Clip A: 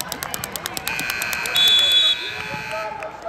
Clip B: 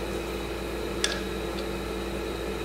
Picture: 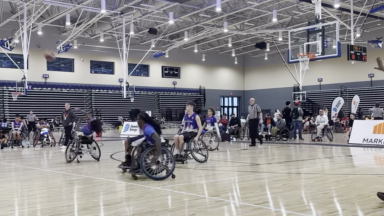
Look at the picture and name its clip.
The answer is A